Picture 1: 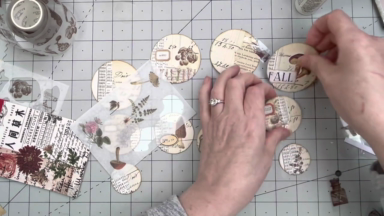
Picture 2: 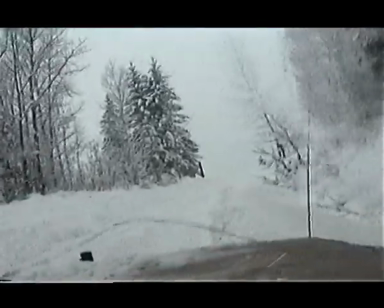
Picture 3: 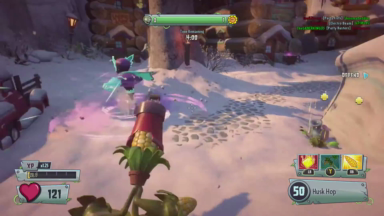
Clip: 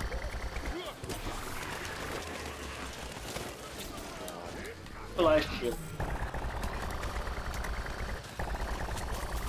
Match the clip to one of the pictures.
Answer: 3